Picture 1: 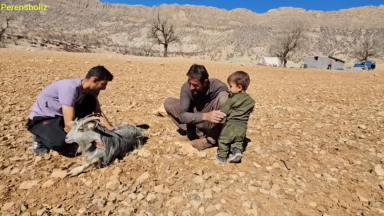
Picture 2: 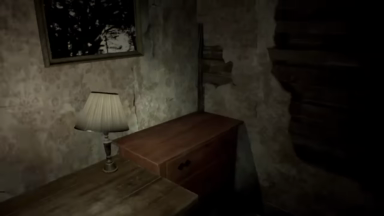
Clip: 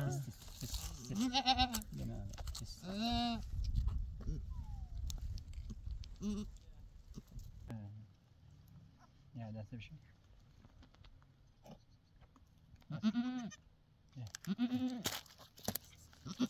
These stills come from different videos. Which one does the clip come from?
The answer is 1